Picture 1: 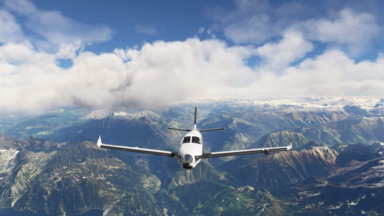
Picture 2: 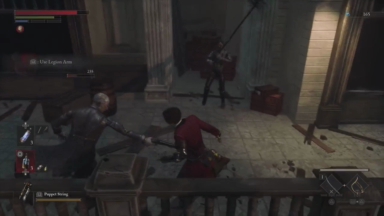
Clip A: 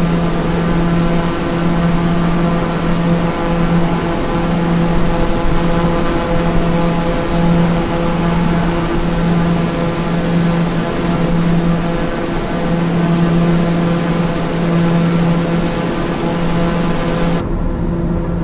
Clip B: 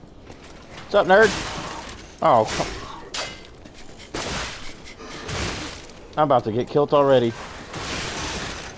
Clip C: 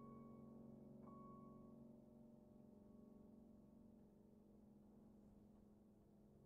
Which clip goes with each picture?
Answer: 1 A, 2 B